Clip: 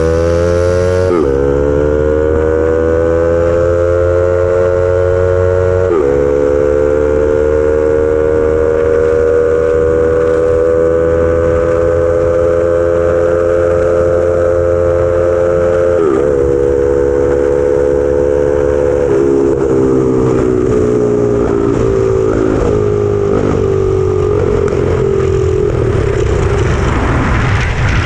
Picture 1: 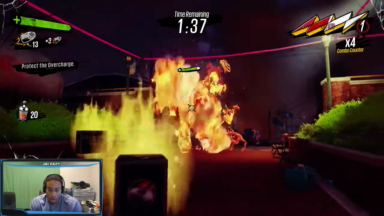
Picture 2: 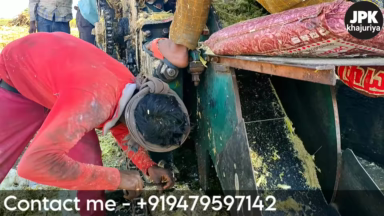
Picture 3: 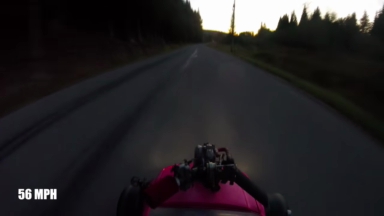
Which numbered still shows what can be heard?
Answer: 3